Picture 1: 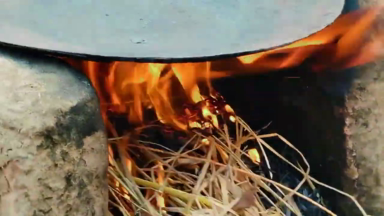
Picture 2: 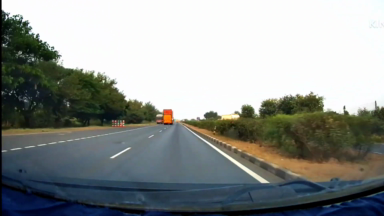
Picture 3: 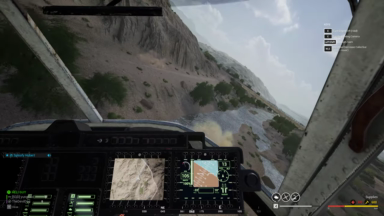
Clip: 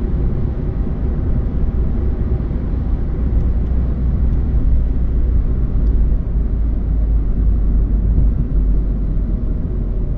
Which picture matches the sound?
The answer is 2